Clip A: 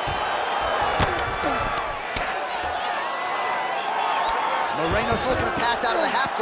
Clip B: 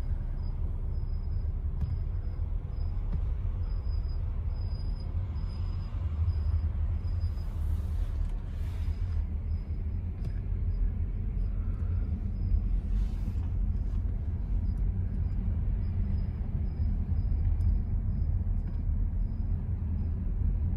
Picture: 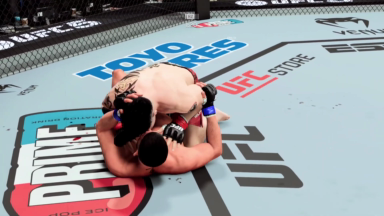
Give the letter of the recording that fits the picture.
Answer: A